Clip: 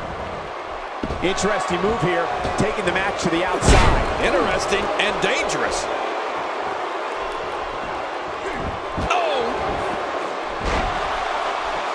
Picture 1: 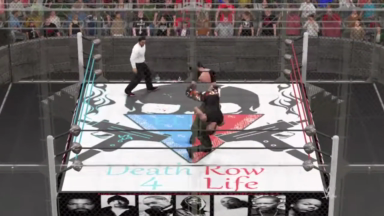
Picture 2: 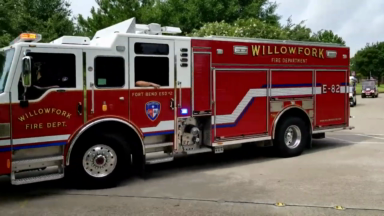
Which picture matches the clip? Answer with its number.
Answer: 1